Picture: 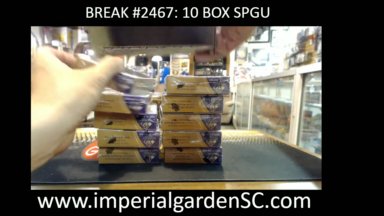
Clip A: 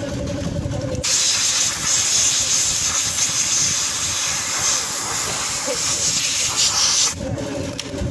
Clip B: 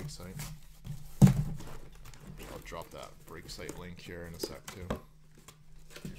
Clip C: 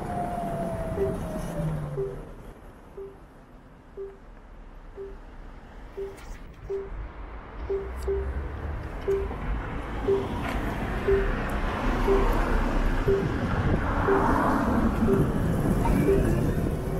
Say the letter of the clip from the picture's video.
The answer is B